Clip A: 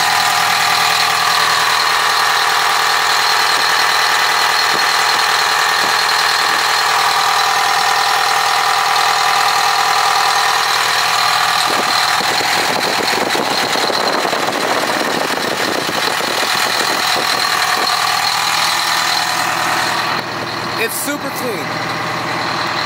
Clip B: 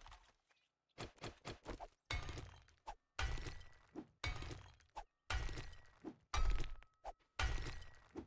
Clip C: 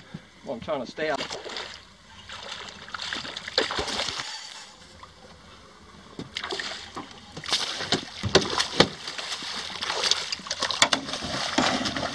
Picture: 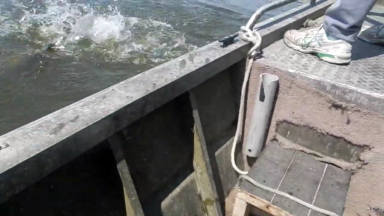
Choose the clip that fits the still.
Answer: C